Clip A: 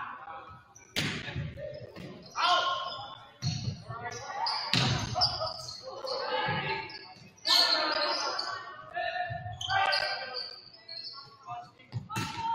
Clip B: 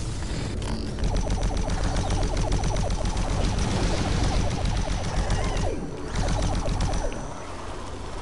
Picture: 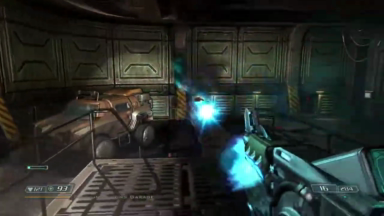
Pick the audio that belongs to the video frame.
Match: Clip B